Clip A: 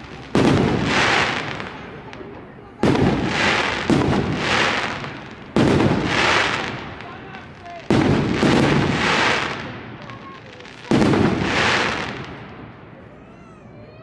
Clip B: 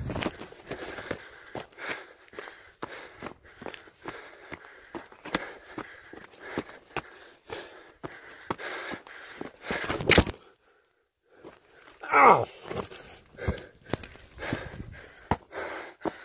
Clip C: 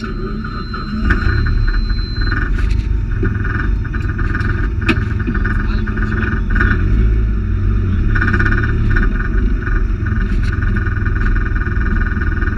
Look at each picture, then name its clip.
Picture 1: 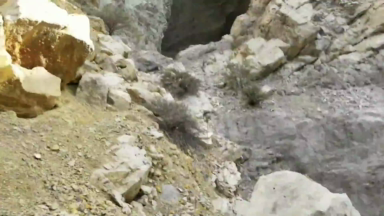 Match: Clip B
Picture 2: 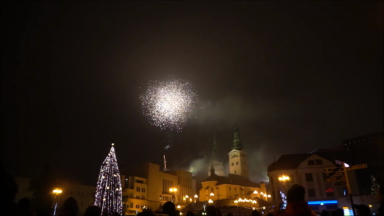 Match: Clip A